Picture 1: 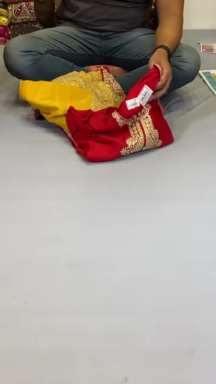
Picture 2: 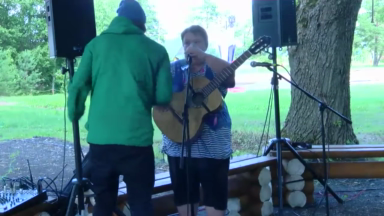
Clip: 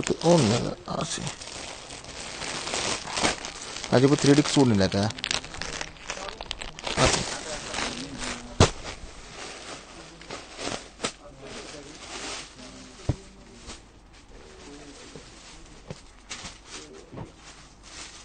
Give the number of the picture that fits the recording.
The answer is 1